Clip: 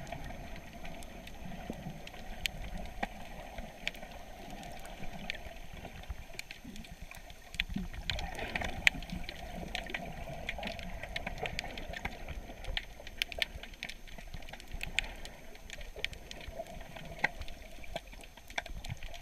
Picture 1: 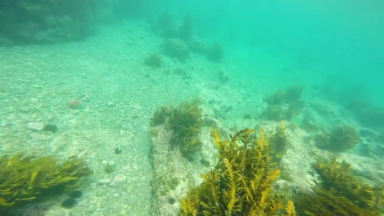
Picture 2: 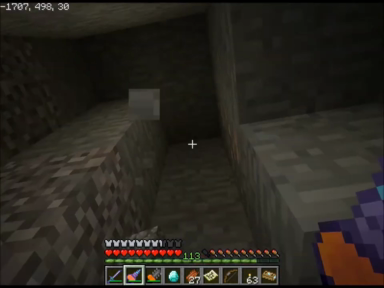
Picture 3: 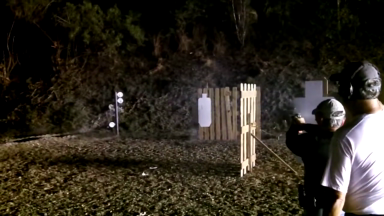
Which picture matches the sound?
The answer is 1